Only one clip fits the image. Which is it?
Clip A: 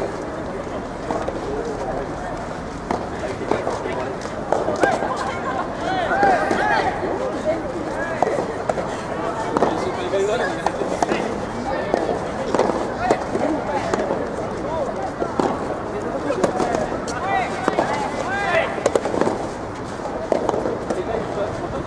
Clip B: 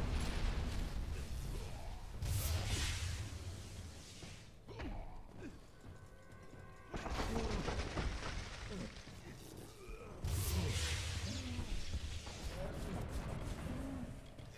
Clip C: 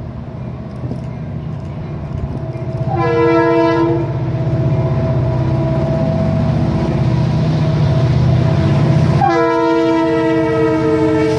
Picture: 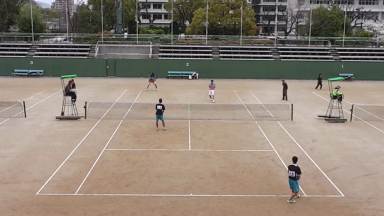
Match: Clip A